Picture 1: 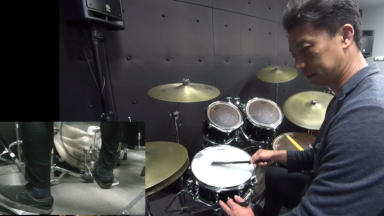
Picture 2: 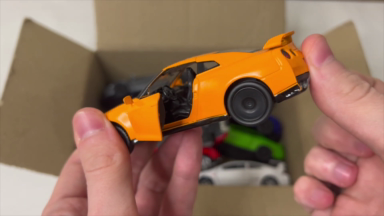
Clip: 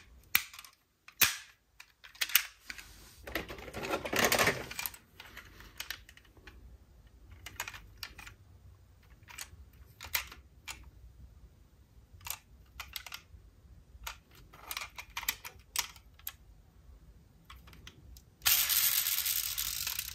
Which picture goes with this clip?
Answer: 2